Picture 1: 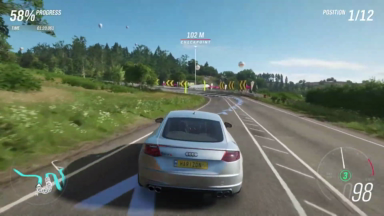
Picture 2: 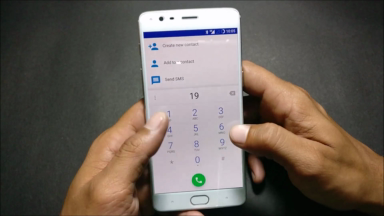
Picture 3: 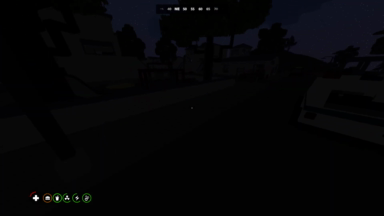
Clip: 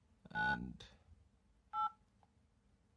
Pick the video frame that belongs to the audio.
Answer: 2